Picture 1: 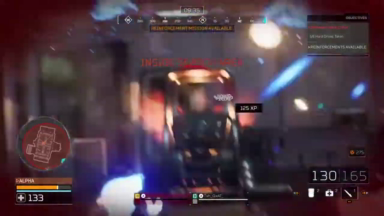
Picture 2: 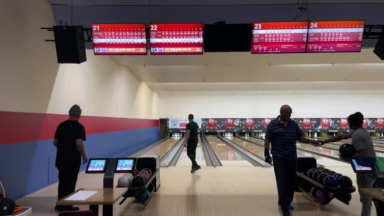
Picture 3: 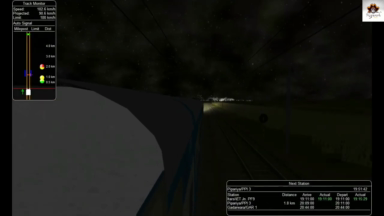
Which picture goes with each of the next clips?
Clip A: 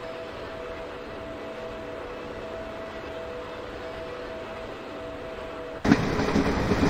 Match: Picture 3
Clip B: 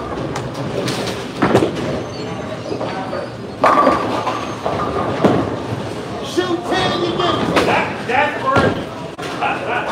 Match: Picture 2